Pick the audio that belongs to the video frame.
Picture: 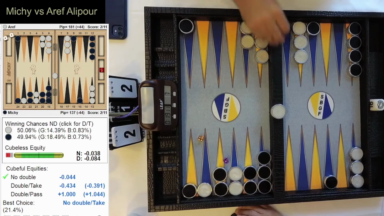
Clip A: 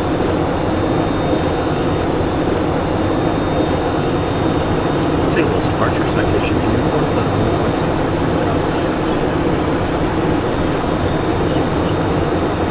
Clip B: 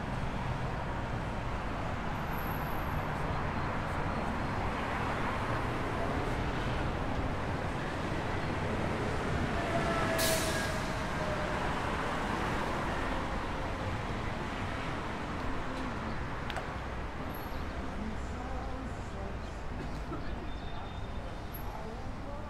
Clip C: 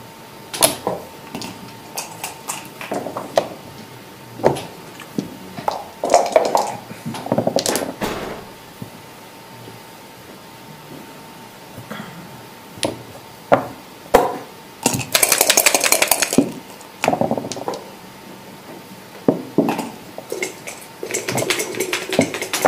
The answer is C